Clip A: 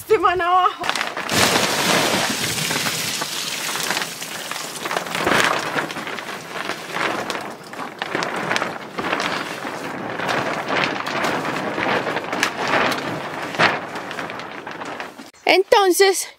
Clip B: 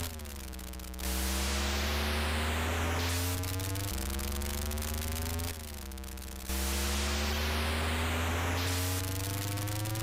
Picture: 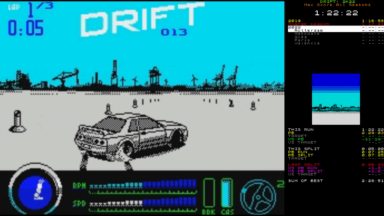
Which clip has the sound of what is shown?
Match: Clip B